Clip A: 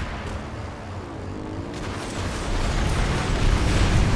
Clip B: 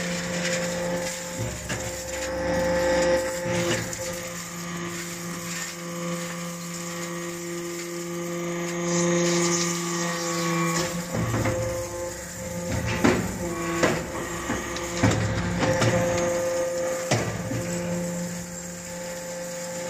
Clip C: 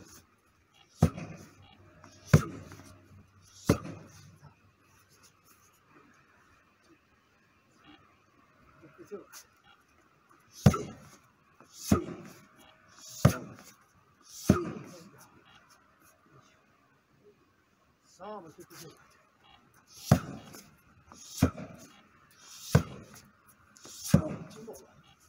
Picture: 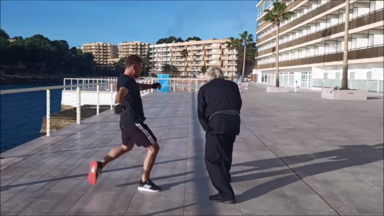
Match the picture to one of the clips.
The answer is C